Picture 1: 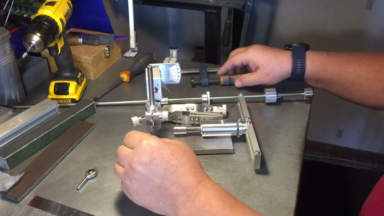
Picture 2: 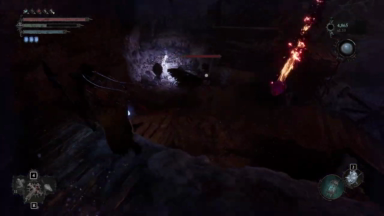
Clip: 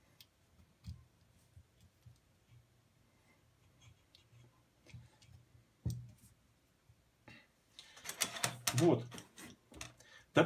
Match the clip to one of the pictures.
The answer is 1